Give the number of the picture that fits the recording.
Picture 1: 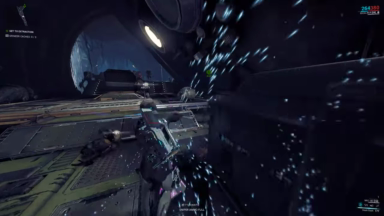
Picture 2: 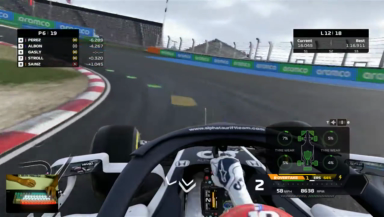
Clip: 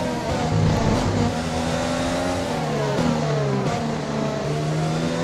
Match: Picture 2